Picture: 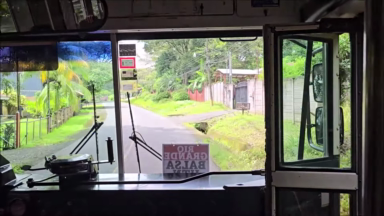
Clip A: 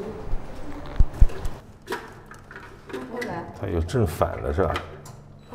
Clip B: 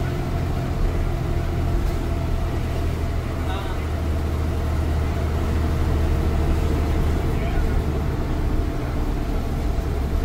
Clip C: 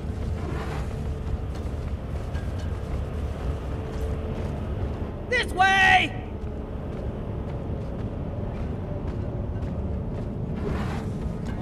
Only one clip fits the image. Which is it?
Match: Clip B